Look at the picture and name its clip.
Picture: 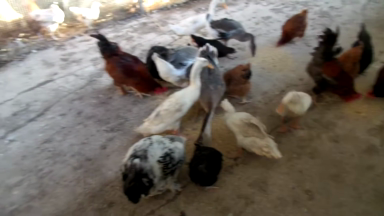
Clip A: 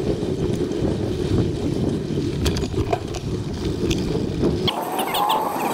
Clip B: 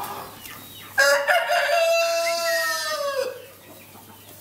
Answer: B